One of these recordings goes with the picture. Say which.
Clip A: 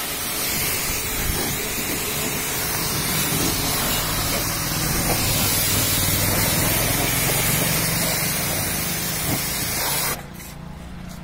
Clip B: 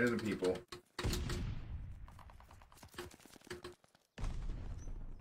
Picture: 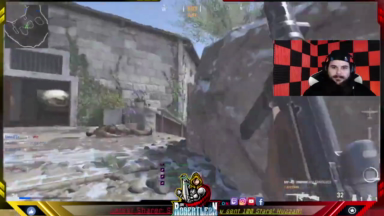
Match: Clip B